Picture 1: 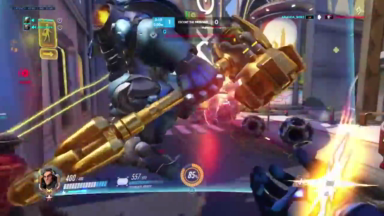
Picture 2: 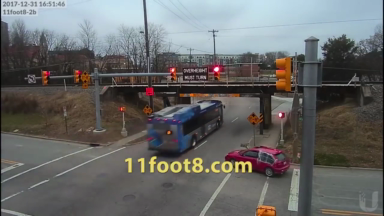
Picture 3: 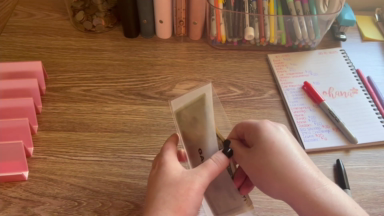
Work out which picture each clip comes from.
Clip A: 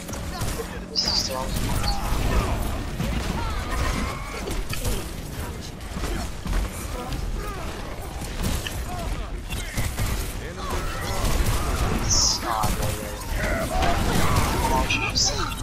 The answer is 1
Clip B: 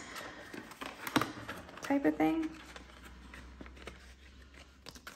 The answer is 3